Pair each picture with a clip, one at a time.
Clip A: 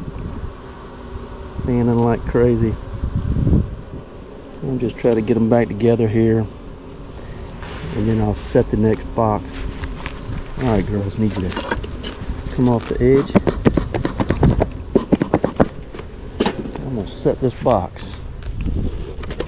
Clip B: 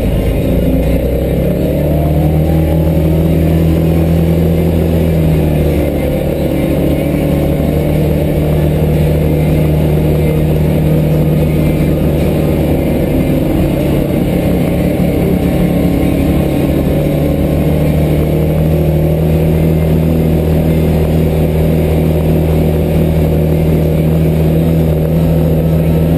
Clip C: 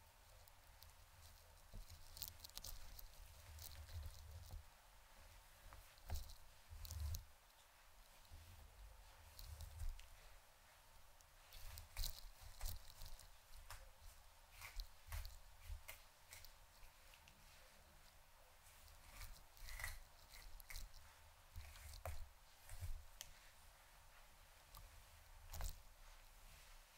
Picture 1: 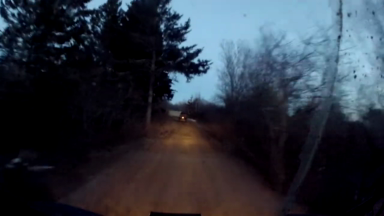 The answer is B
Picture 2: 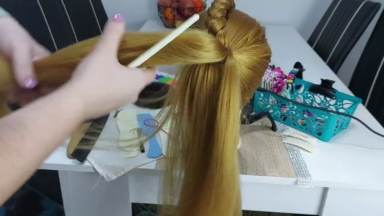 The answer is C